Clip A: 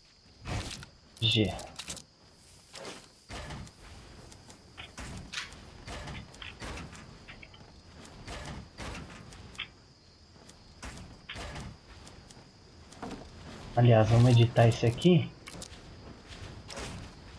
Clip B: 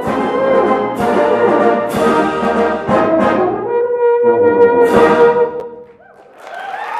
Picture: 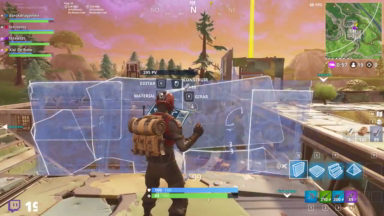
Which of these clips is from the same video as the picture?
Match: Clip A